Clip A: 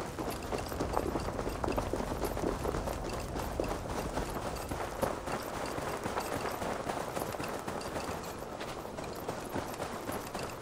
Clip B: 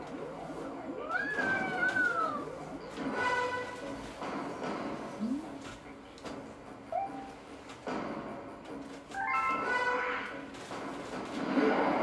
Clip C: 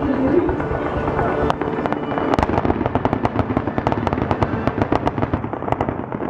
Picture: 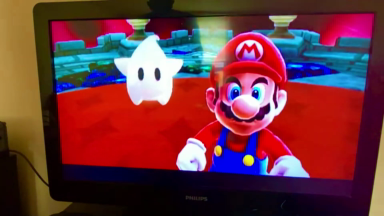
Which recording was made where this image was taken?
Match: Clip B